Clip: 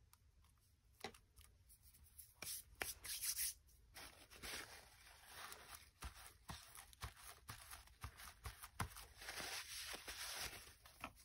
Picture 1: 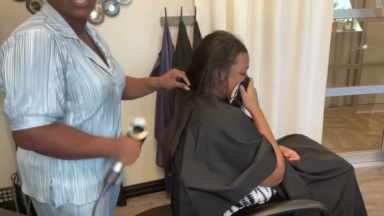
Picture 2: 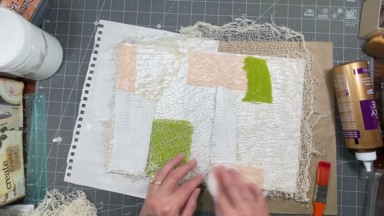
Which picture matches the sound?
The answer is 2